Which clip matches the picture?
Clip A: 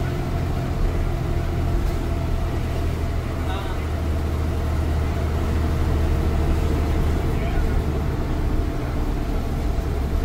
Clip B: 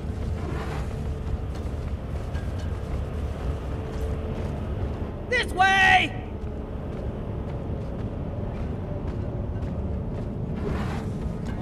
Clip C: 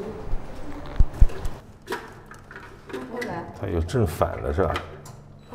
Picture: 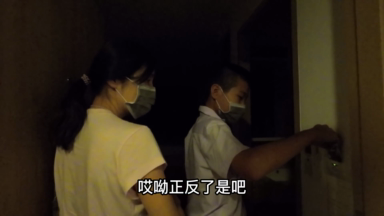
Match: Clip C